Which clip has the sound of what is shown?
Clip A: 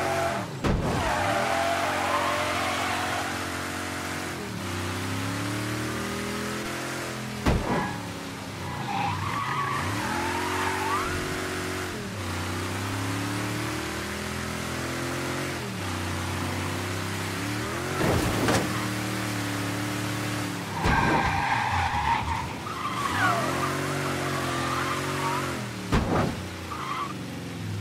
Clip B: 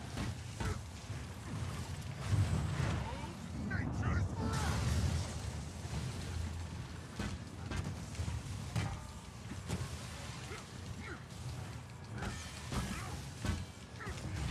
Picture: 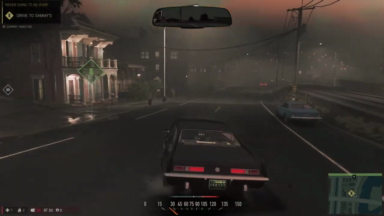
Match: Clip A